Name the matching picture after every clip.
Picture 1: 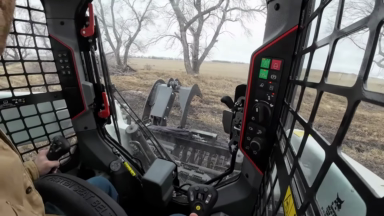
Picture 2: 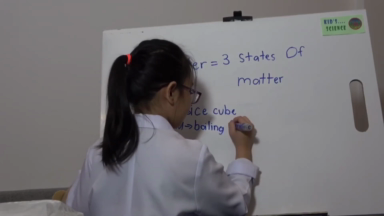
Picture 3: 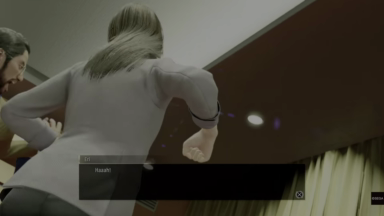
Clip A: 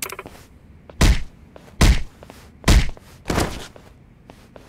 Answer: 3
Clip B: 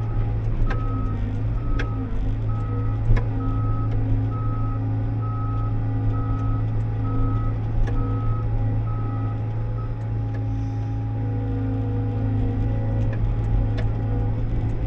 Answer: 1